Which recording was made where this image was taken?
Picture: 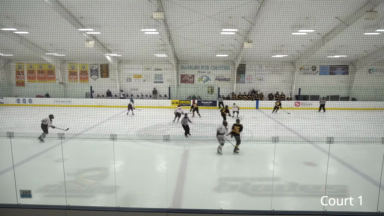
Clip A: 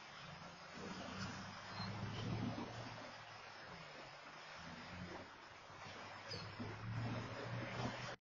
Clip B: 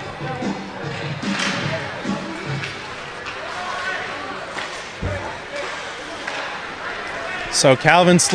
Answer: B